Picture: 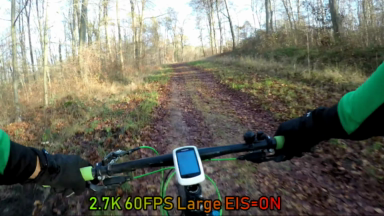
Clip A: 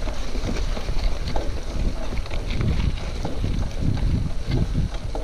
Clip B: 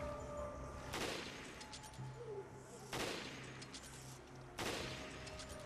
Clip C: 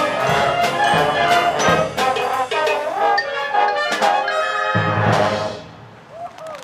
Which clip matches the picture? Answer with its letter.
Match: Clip A